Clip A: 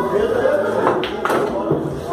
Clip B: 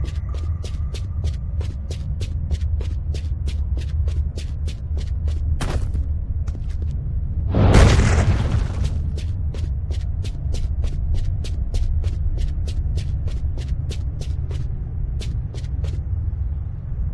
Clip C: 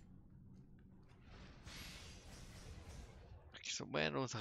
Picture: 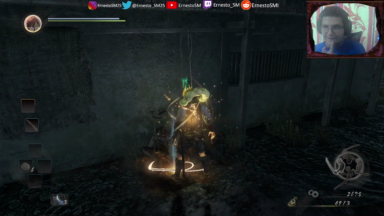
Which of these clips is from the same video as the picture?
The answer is C